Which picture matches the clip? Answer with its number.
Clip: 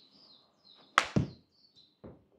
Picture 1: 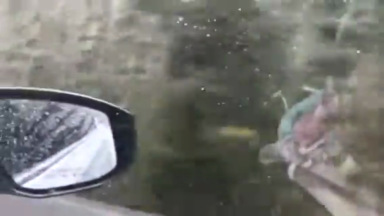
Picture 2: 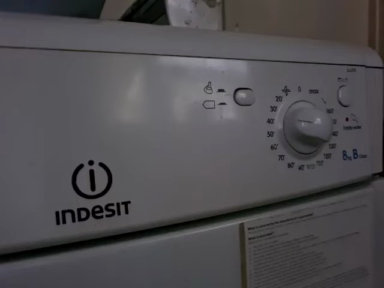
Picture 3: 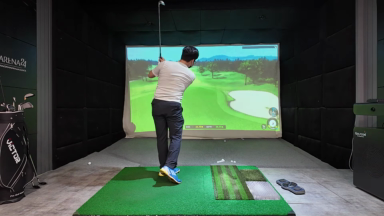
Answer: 3